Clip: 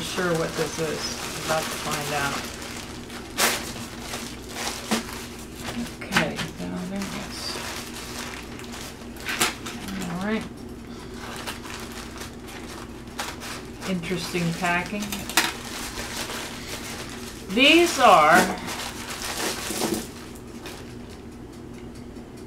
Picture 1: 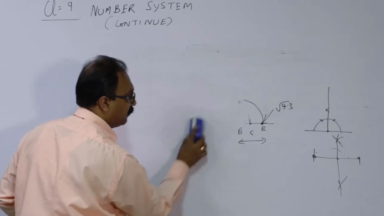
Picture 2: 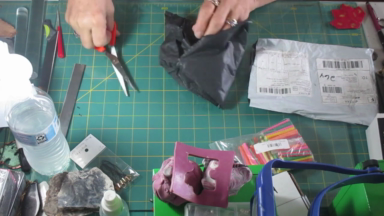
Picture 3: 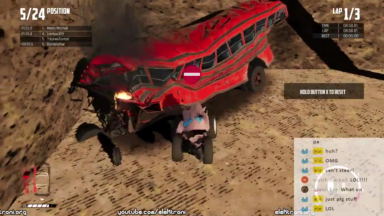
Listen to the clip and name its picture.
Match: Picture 2